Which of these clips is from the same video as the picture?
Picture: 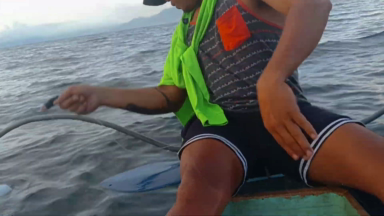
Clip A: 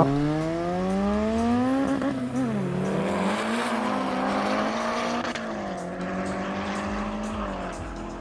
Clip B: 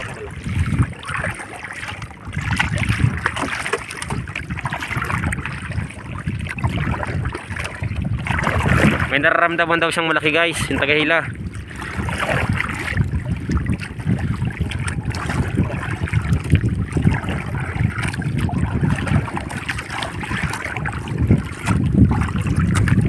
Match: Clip B